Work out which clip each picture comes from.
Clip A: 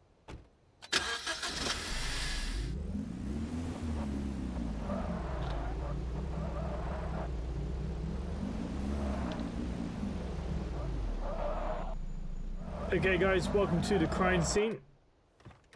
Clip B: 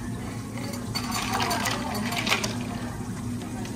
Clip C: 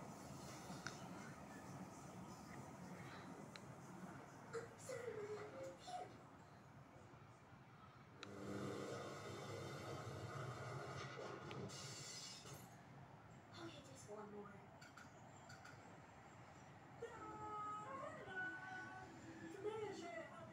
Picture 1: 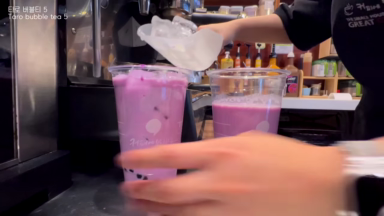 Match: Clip B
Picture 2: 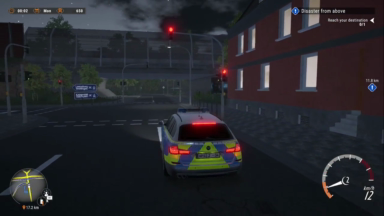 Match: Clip A